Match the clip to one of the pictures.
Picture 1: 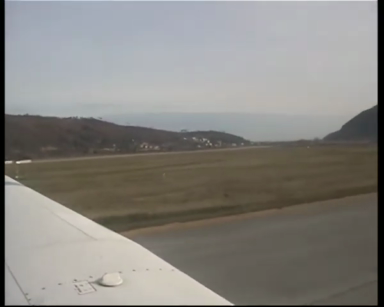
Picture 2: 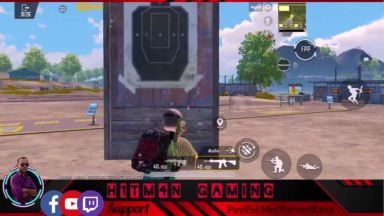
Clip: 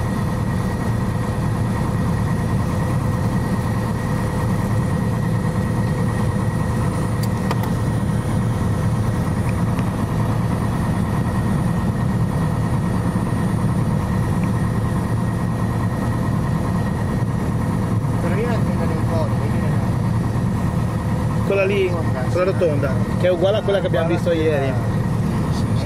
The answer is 1